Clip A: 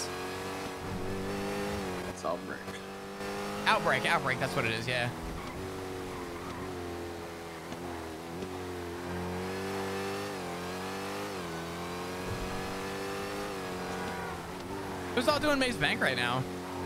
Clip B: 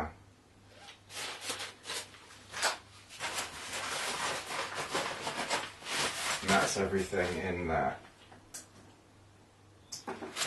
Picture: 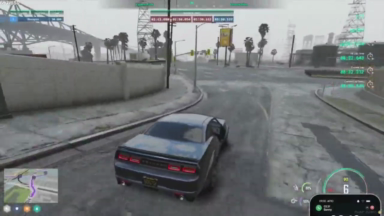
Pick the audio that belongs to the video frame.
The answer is A